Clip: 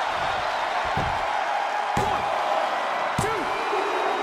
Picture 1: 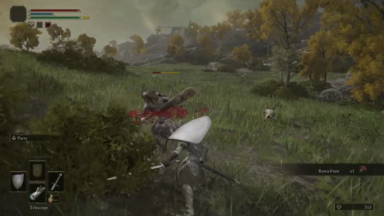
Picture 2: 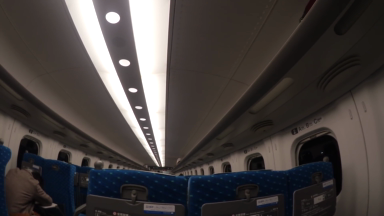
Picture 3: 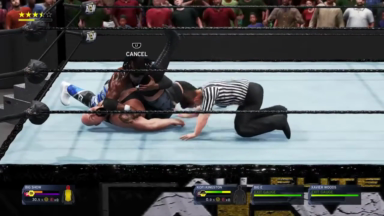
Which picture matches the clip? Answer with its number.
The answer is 3